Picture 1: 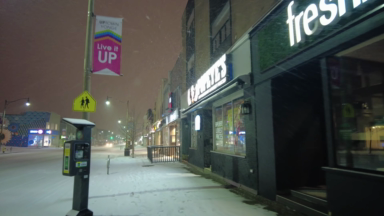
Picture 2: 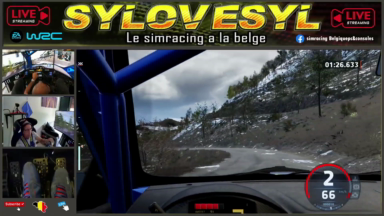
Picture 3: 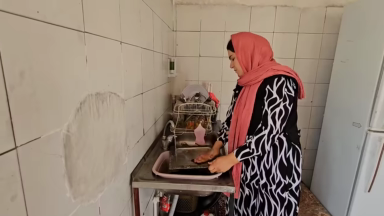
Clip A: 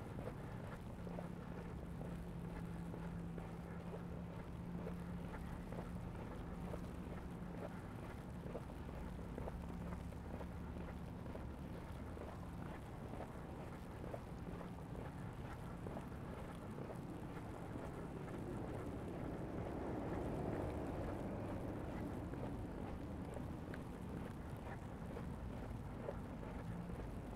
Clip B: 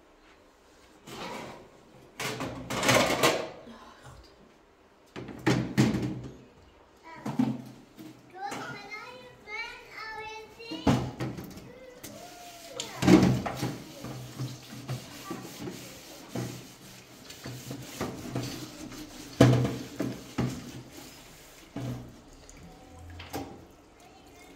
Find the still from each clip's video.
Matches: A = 1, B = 3